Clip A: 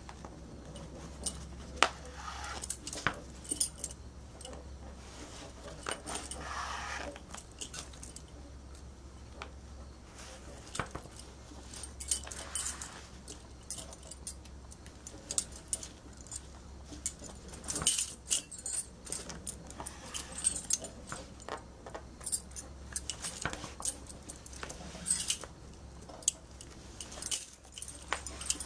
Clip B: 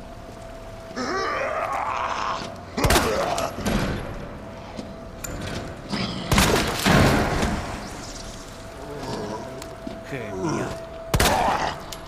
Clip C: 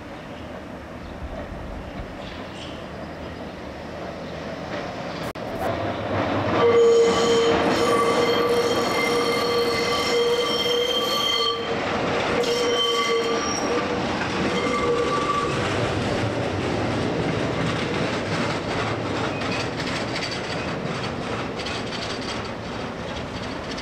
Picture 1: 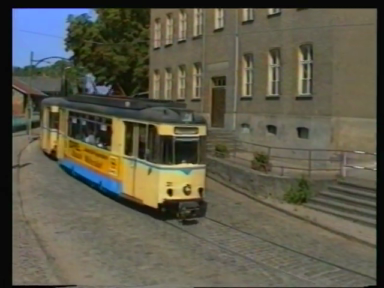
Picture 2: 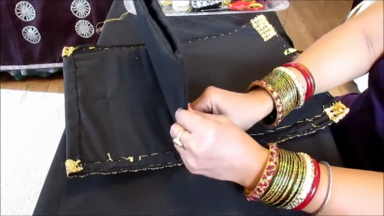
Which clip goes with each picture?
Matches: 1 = C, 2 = A